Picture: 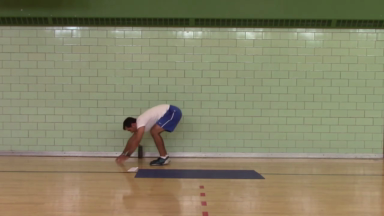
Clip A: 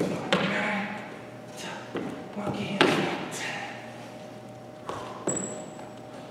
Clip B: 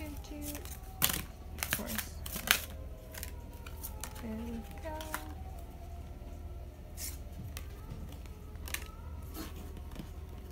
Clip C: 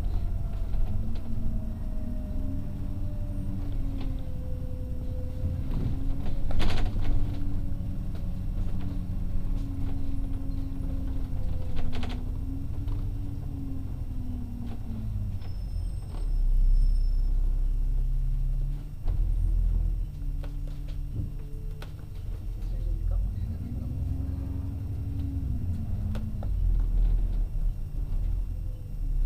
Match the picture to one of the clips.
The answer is A